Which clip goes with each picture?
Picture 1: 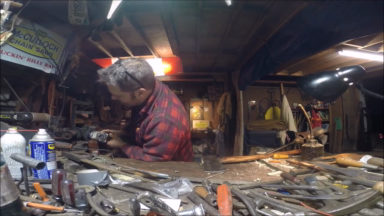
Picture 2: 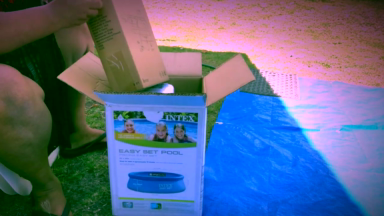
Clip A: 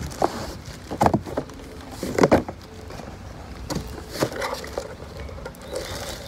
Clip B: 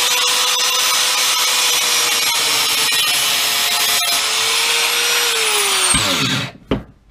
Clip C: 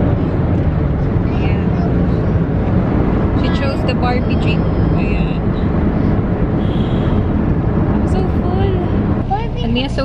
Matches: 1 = B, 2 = A